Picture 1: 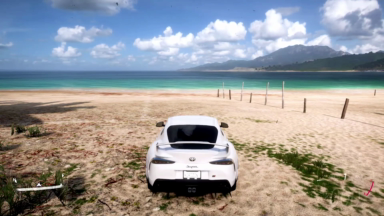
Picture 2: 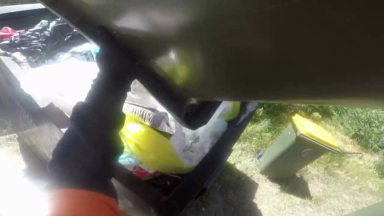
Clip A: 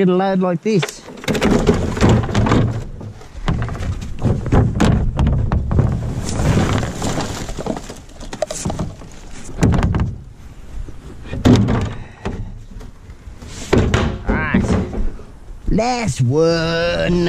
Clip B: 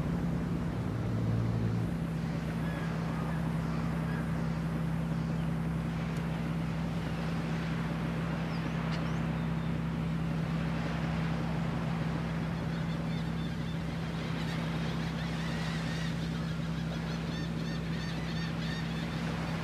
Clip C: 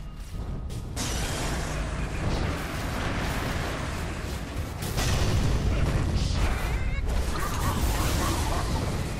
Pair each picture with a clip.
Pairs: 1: B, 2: A